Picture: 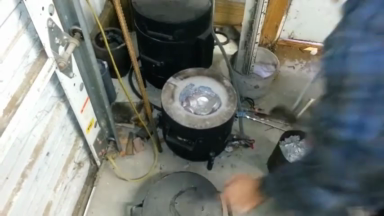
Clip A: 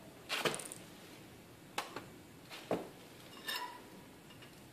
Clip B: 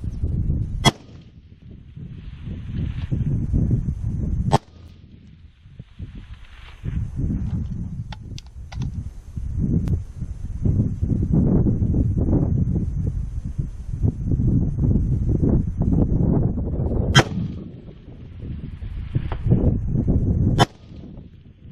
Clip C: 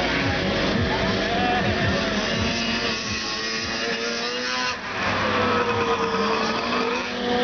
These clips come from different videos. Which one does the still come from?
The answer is A